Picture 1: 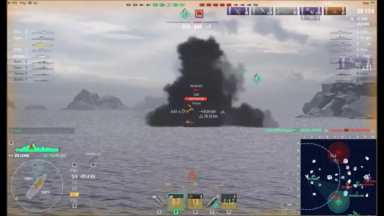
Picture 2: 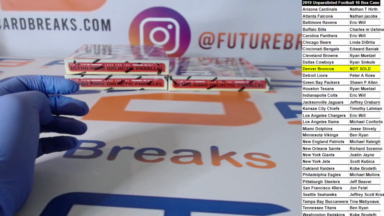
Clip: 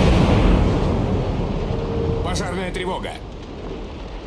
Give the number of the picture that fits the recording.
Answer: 1